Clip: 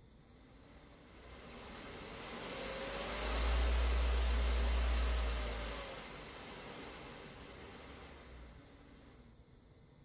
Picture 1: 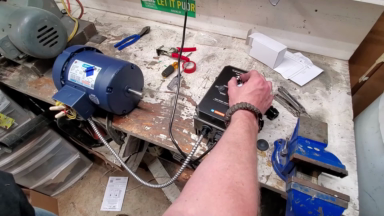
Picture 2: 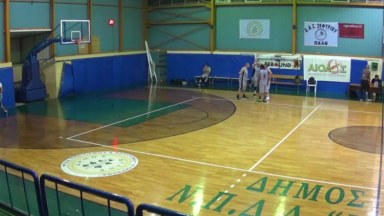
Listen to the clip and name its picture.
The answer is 1